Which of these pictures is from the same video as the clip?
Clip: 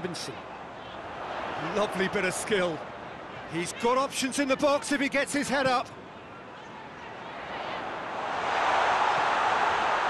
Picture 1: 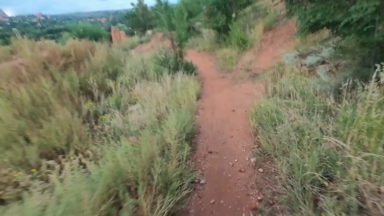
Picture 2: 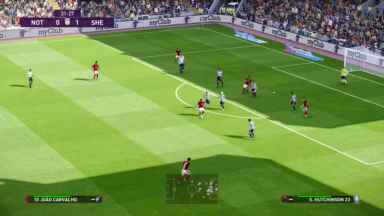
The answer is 2